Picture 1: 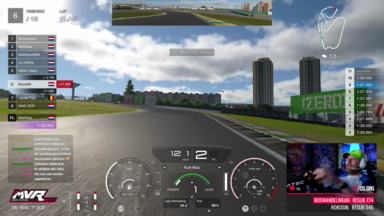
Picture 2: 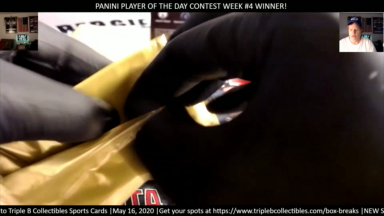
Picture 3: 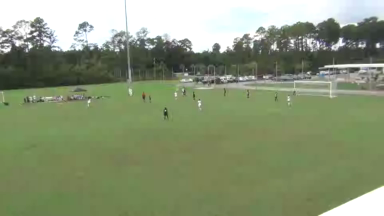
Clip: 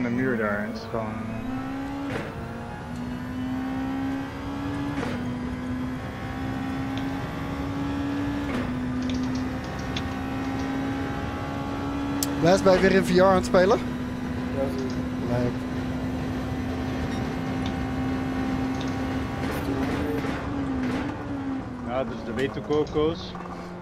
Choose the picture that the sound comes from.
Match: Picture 1